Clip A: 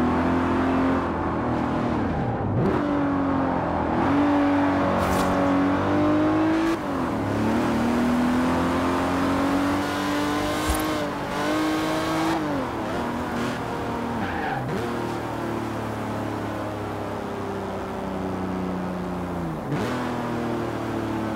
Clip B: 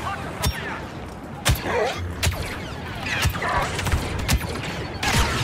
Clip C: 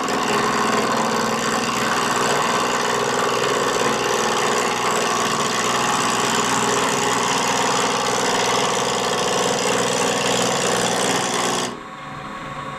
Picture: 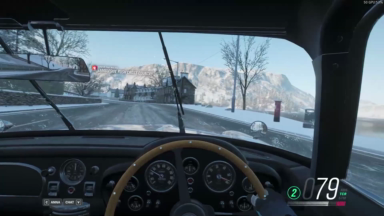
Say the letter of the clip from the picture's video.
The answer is A